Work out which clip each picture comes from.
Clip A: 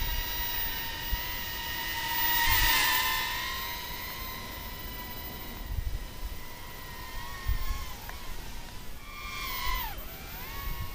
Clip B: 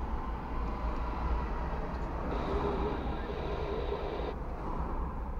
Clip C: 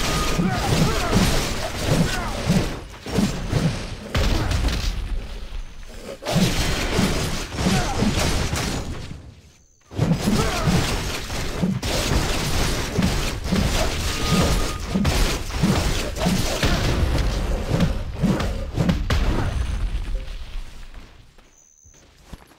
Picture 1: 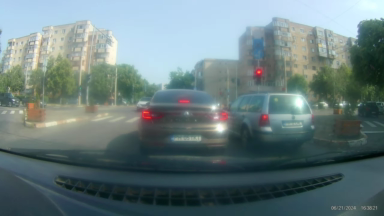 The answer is B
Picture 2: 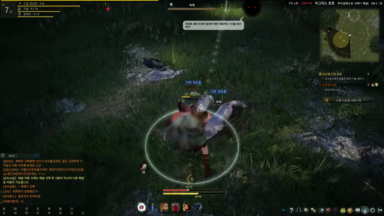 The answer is C